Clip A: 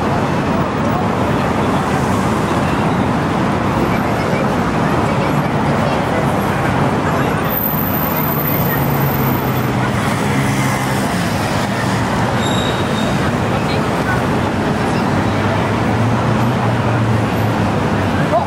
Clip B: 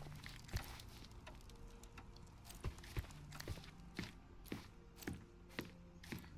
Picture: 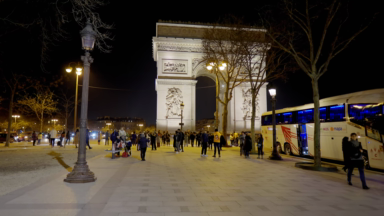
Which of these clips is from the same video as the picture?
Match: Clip A